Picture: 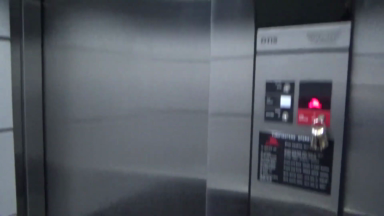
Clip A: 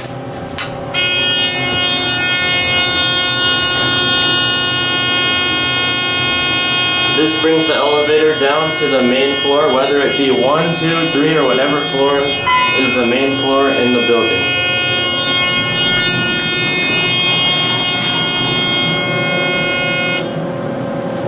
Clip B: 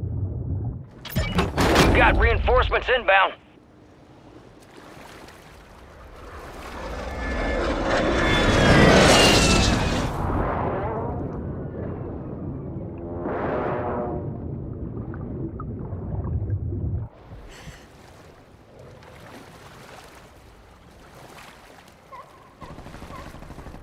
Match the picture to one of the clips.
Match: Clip A